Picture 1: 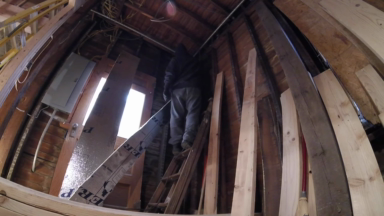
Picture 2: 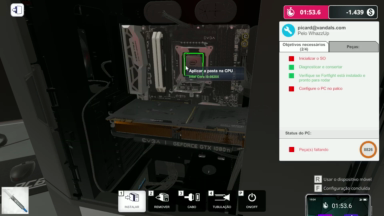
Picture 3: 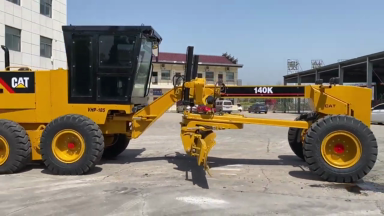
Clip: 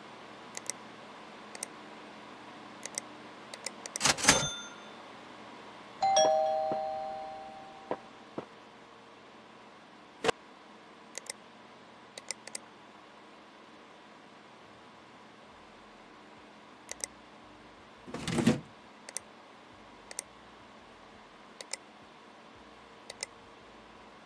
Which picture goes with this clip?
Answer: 2